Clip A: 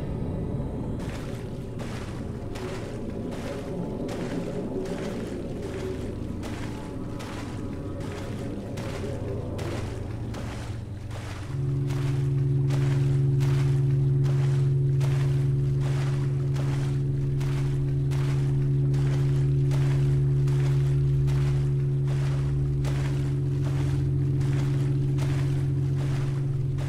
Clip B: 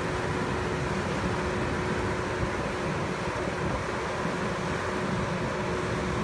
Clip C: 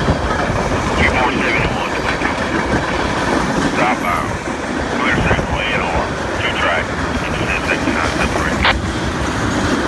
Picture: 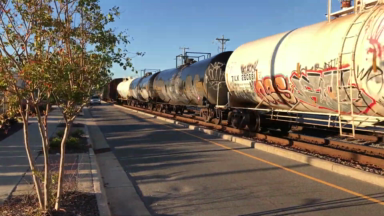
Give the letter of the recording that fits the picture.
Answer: C